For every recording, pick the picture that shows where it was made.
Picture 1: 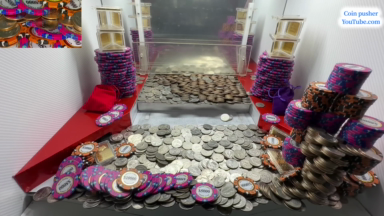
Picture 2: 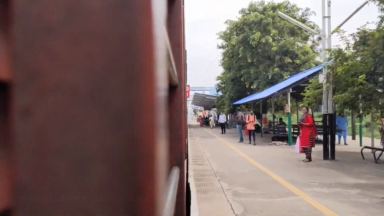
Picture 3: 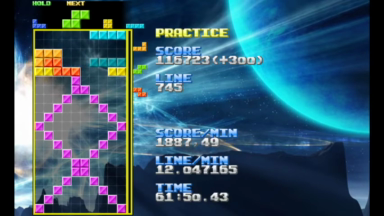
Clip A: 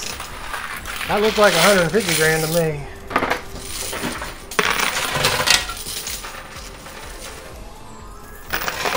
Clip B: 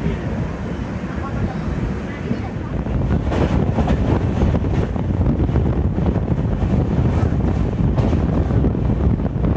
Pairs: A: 1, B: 2